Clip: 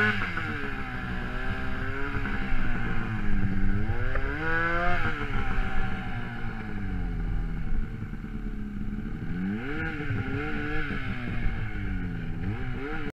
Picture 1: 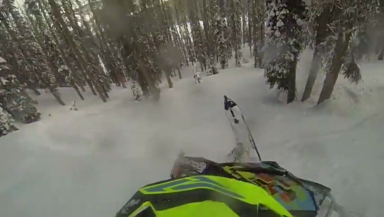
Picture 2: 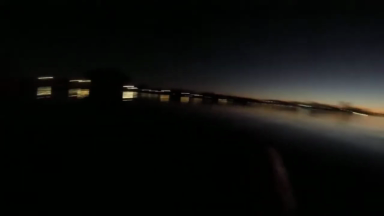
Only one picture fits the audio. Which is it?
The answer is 1